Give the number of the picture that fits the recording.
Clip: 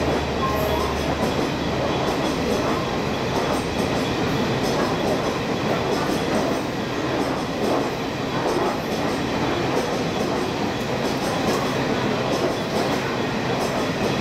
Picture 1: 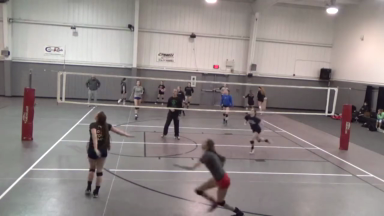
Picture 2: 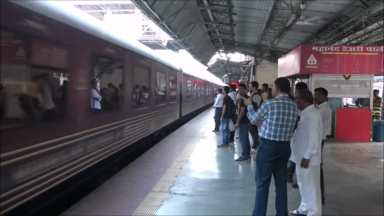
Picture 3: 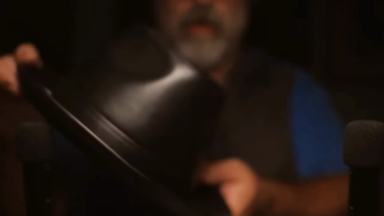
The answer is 2